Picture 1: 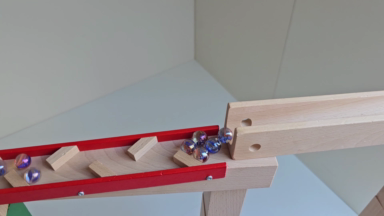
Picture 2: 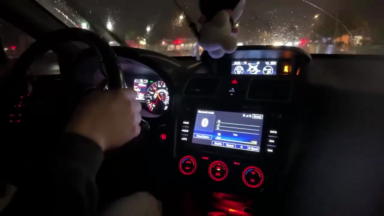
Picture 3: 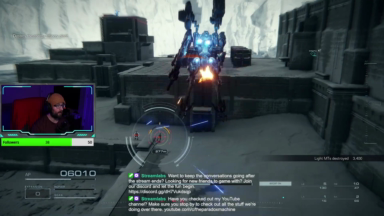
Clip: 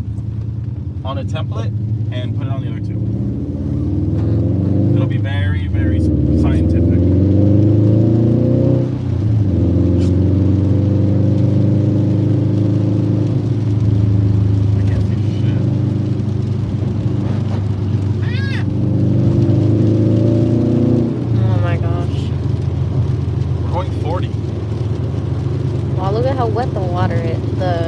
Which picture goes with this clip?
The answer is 2